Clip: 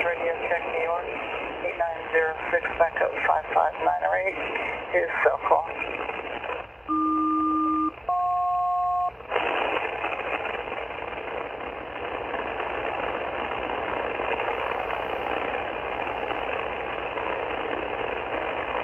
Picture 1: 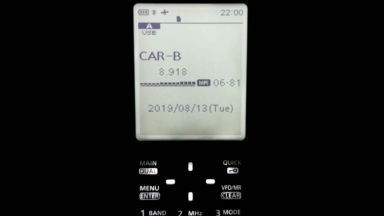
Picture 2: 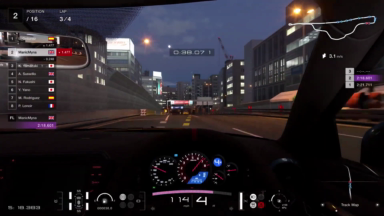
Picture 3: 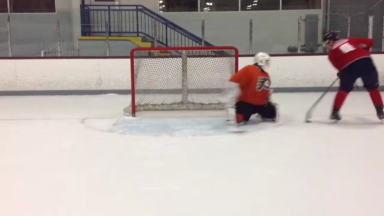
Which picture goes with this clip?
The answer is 1